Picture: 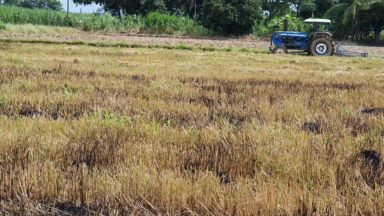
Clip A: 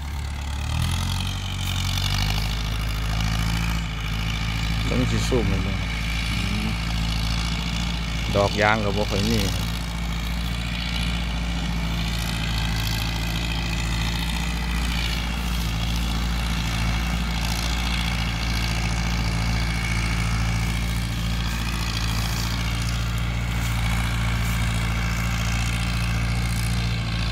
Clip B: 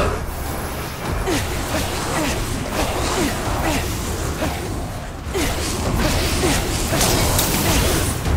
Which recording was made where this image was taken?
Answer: A